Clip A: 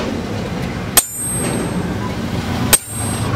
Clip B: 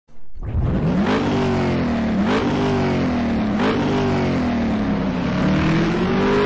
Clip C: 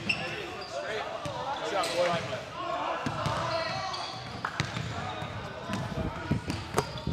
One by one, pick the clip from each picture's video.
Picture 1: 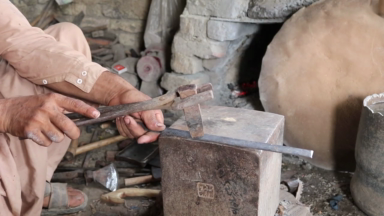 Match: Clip A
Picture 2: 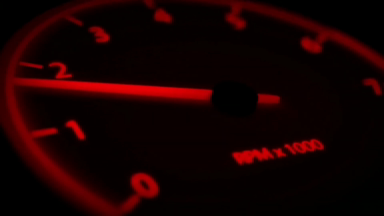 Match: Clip B